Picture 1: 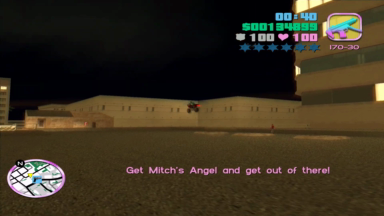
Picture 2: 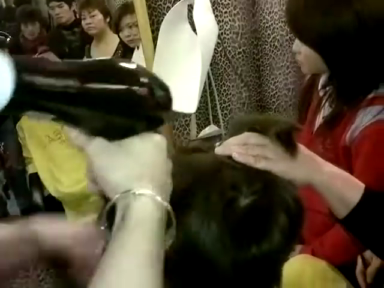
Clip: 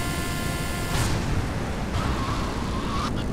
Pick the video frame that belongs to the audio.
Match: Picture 1